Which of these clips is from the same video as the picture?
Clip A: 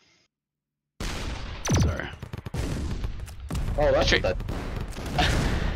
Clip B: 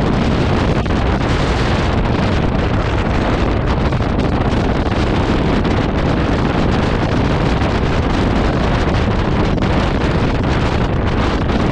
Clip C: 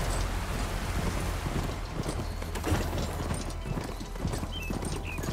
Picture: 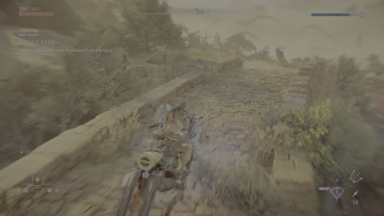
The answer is C